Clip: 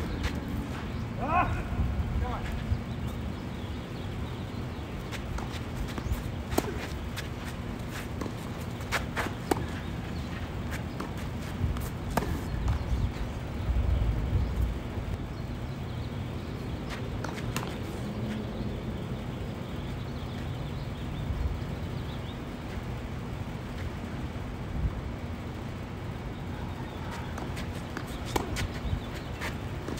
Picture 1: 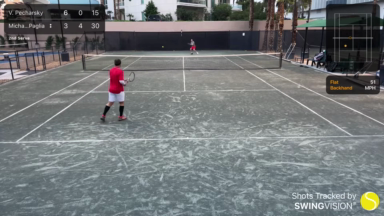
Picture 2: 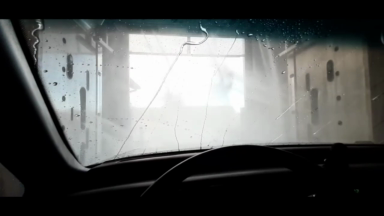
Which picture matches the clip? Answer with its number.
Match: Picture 1